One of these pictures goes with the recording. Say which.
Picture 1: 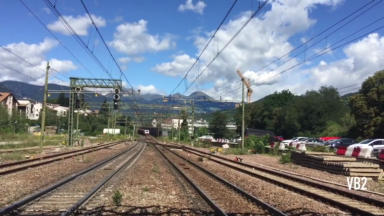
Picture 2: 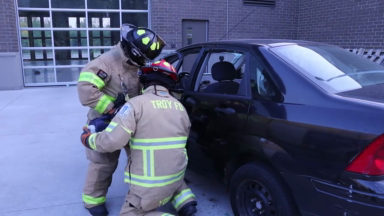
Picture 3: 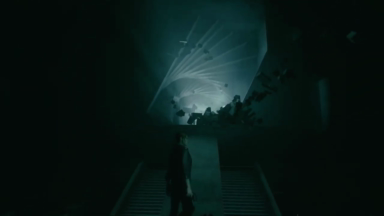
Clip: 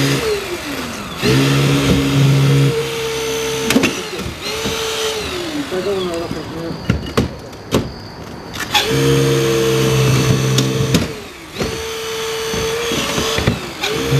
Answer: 2